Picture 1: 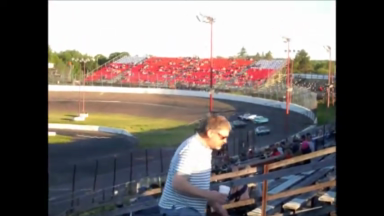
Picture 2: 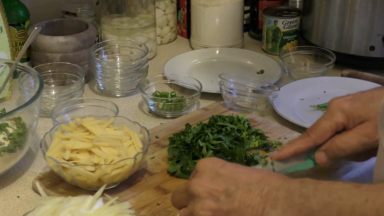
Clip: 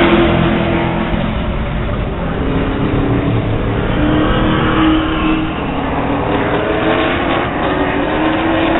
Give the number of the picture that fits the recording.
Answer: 1